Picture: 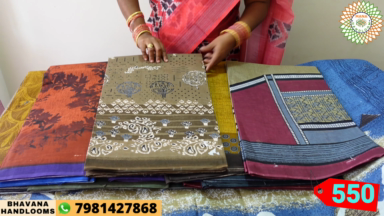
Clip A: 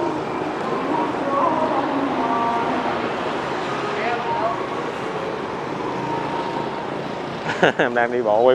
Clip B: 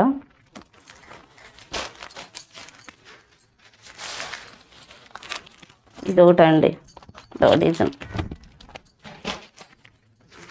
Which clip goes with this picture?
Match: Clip B